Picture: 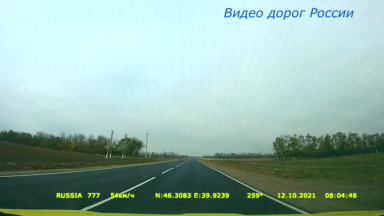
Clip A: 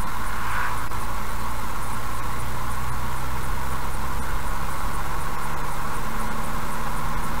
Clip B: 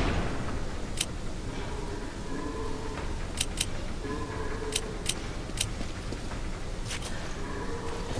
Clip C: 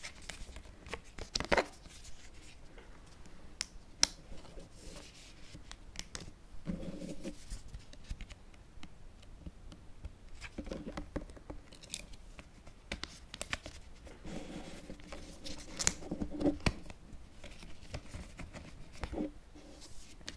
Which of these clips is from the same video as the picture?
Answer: A